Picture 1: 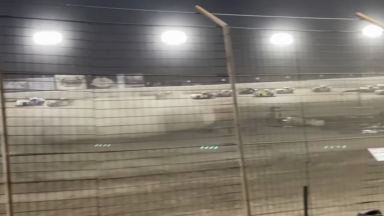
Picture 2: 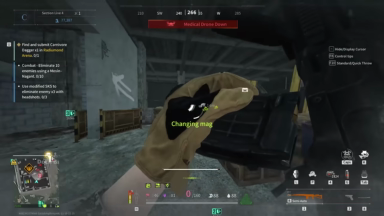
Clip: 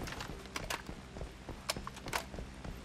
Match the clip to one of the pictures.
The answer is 2